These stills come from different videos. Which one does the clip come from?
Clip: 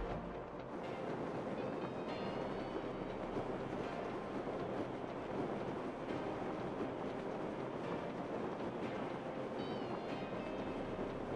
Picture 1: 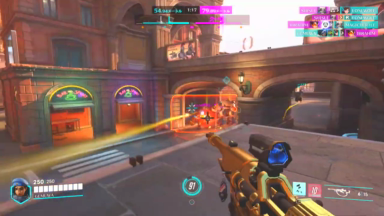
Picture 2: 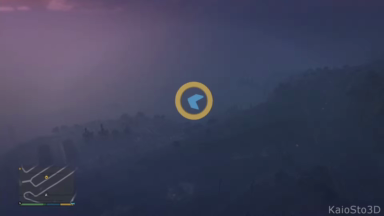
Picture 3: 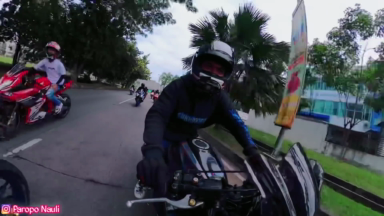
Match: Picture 2